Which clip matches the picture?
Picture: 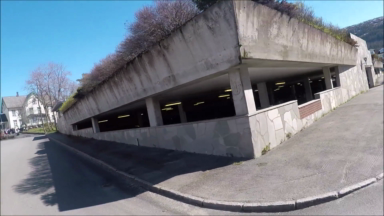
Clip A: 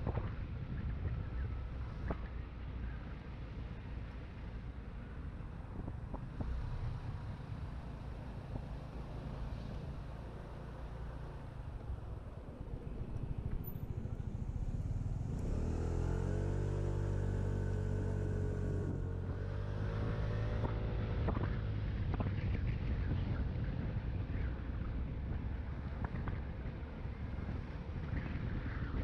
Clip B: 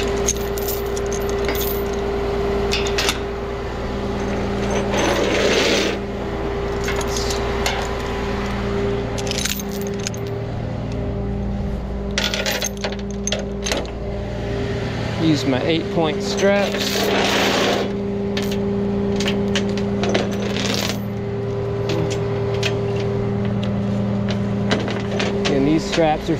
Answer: A